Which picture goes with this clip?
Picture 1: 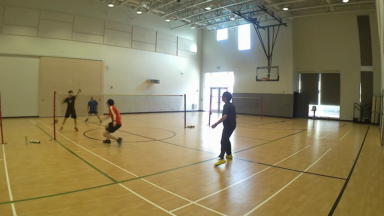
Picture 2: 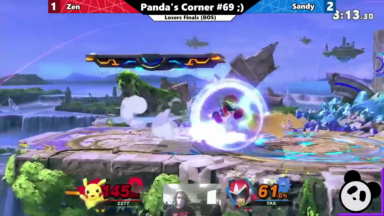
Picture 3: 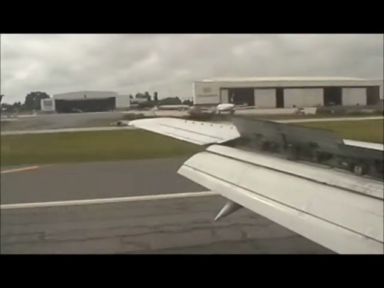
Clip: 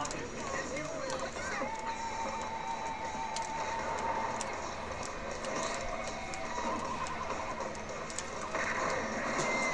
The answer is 2